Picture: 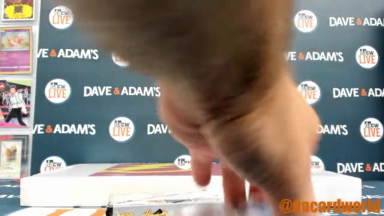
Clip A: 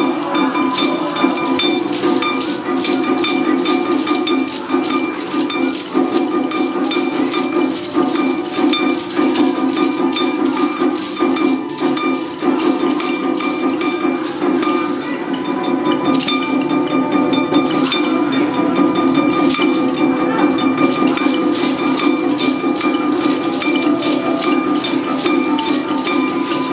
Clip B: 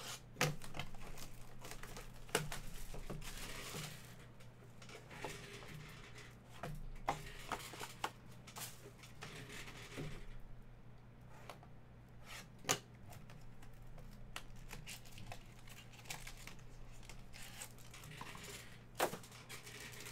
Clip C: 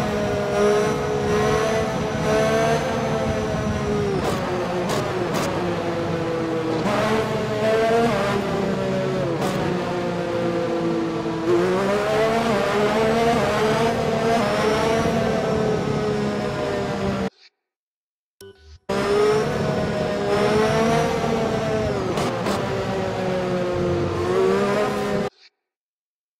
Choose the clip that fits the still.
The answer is B